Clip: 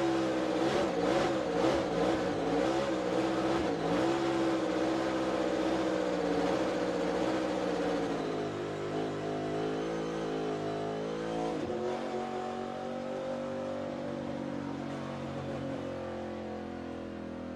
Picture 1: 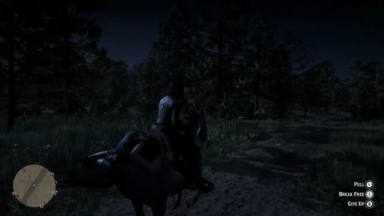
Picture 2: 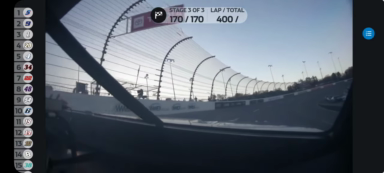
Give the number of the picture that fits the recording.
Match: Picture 2